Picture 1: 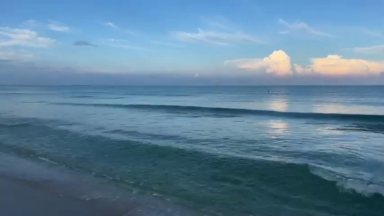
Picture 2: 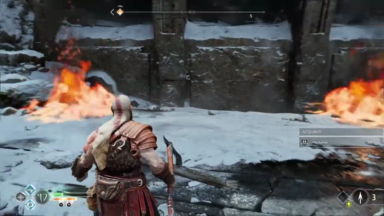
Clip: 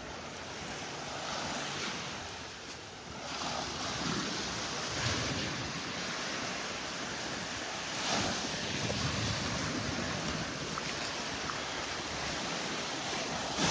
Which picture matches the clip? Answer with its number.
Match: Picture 1